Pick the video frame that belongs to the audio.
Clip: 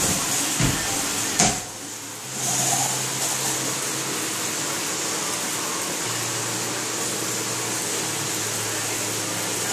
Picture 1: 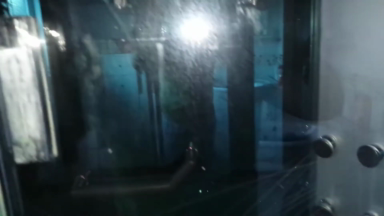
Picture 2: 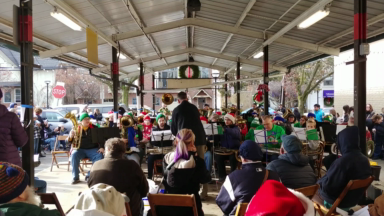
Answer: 1